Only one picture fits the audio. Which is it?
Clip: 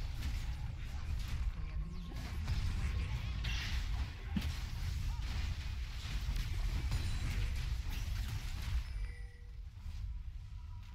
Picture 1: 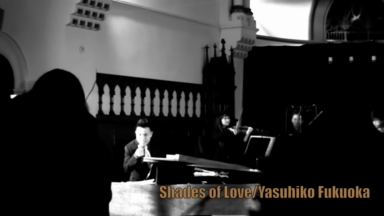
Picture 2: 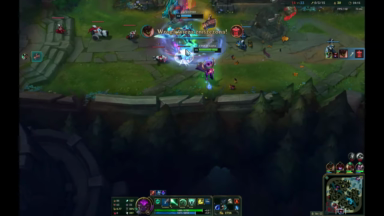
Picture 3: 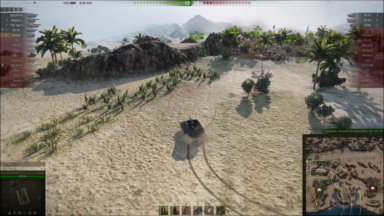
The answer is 2